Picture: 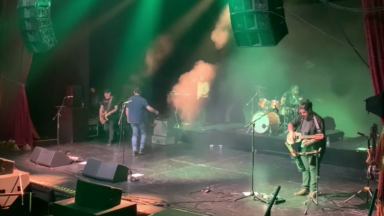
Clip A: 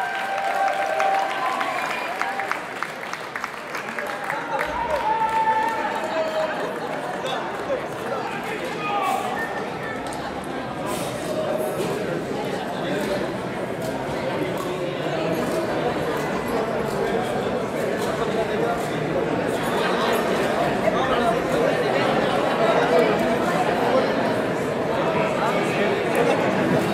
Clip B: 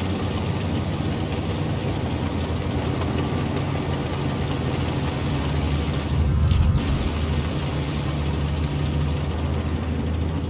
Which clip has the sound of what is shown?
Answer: A